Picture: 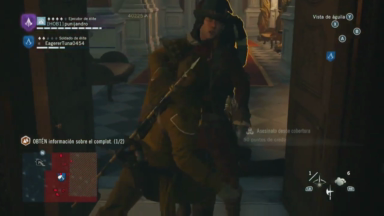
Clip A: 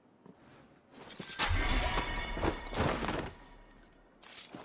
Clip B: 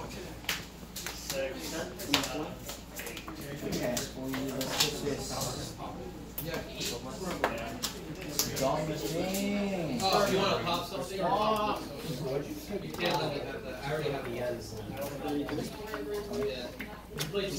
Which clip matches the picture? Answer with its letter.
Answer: A